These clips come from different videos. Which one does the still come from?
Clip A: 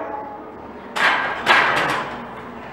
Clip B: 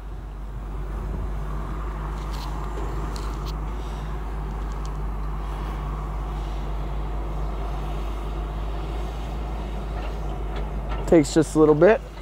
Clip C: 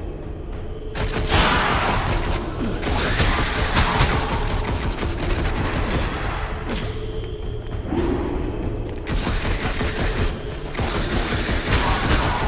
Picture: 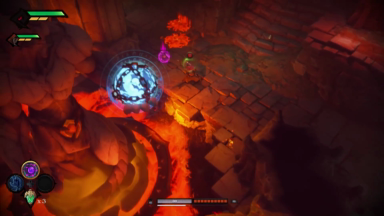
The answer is C